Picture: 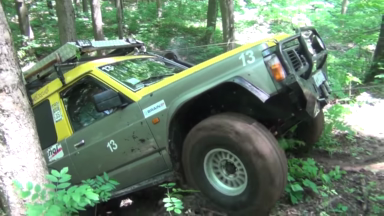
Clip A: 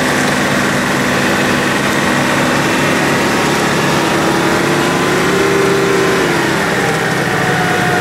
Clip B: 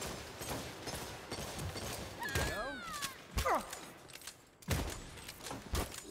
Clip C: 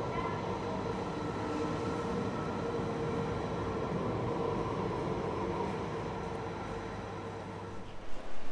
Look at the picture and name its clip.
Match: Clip A